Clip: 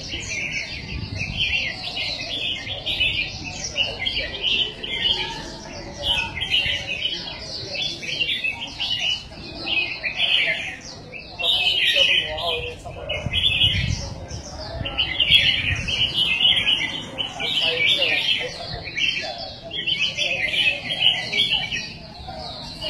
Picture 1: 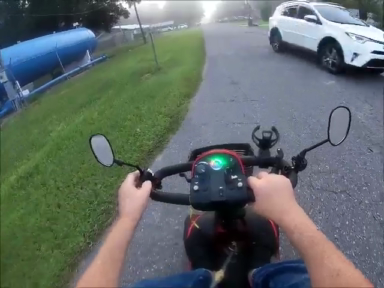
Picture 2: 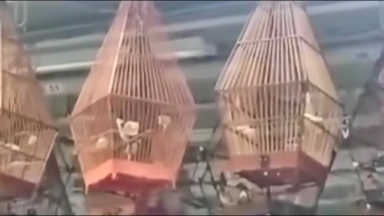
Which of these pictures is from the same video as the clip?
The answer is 2